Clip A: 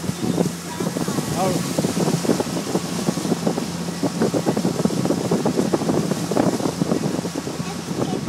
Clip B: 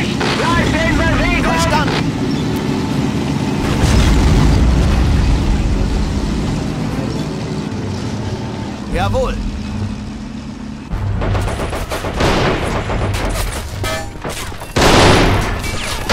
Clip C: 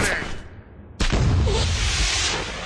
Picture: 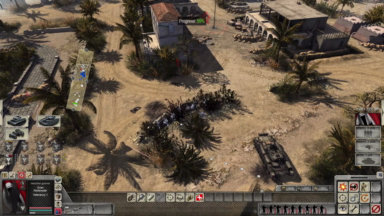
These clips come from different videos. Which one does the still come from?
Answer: B